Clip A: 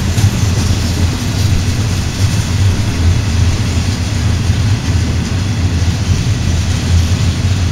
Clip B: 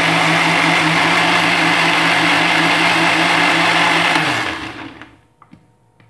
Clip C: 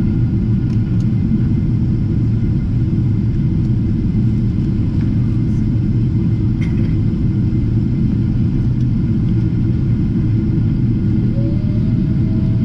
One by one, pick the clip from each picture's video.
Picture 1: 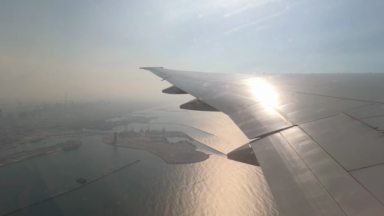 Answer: C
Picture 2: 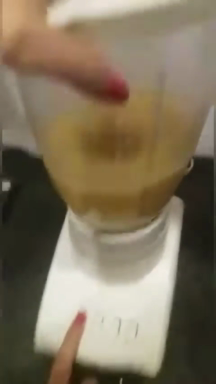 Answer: B